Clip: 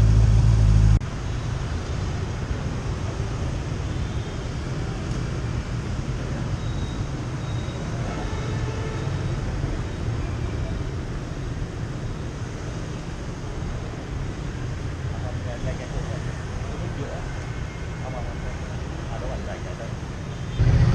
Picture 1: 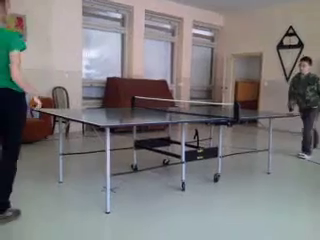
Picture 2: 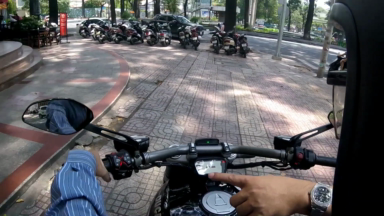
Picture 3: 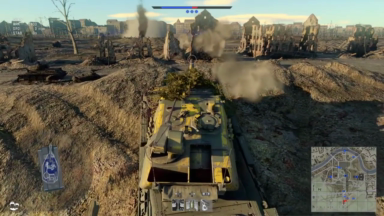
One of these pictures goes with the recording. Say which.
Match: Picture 2